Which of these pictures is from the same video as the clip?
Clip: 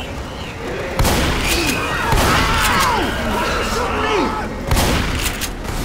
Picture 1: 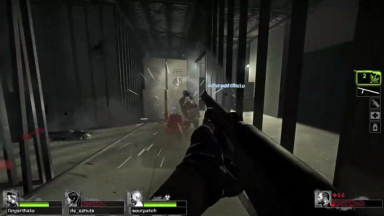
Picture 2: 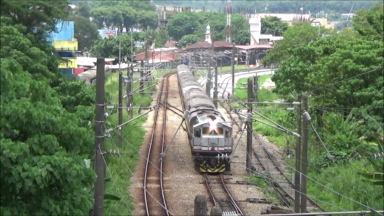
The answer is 1